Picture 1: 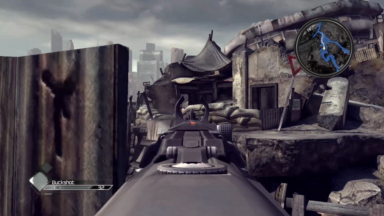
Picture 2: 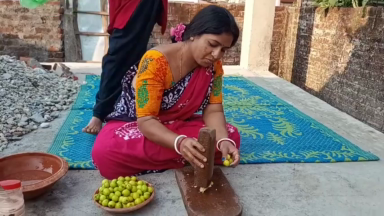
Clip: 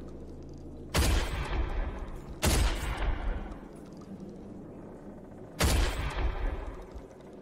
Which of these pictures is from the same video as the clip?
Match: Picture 1